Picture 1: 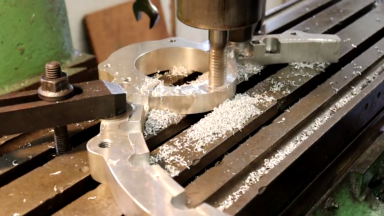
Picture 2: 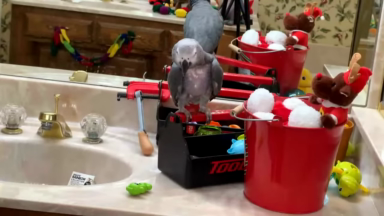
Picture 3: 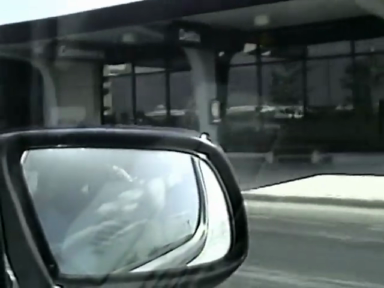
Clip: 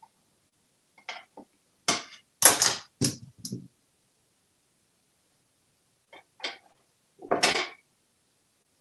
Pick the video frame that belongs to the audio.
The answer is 2